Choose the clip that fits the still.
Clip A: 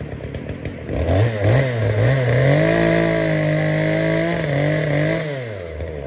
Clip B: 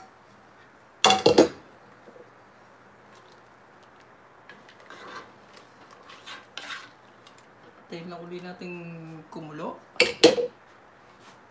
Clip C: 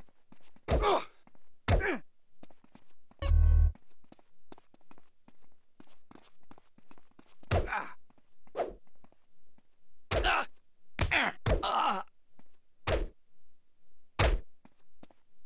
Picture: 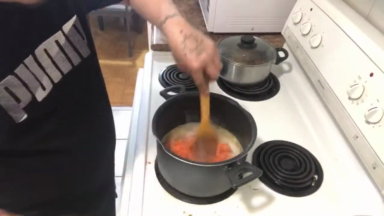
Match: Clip B